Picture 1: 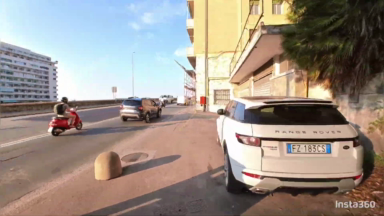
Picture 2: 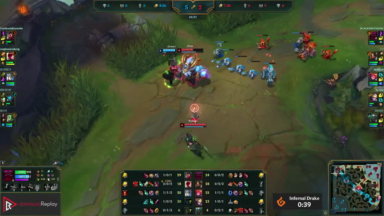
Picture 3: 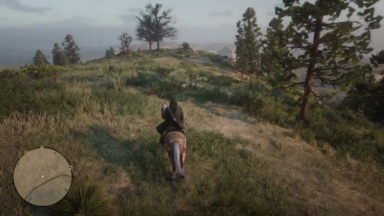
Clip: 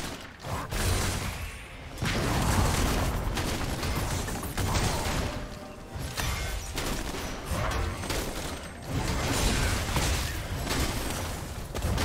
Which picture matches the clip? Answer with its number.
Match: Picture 2